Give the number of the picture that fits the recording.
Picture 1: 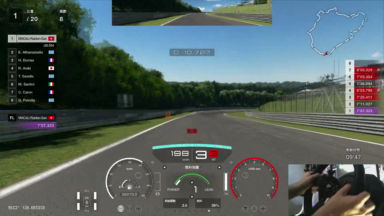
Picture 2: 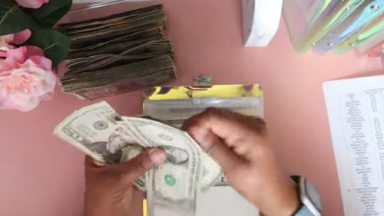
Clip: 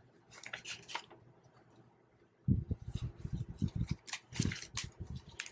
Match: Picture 2